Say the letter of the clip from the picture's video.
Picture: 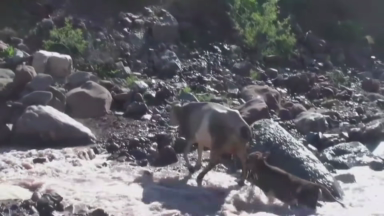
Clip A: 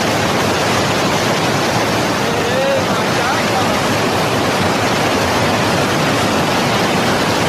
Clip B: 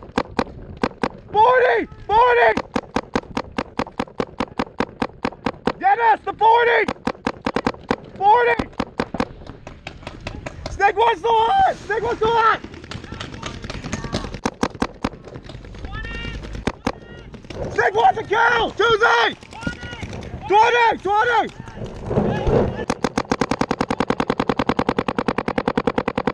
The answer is A